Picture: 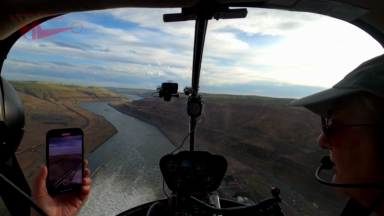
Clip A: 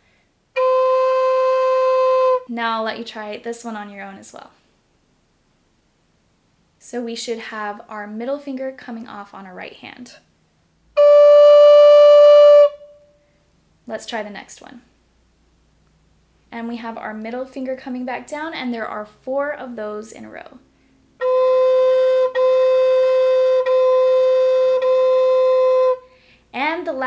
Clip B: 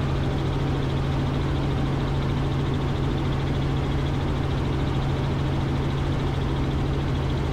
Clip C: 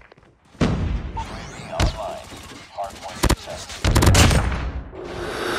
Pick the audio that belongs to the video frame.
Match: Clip B